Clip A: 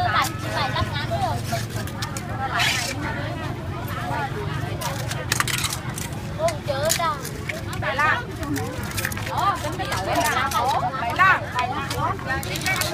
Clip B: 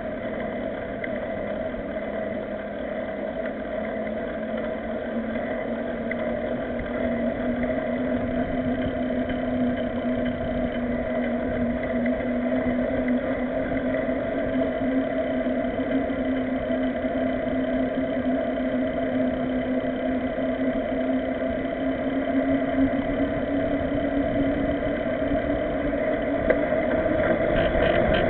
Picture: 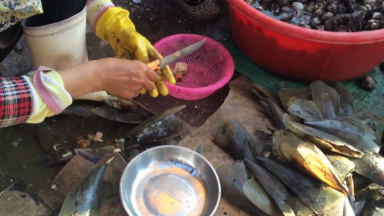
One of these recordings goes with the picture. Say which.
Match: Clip A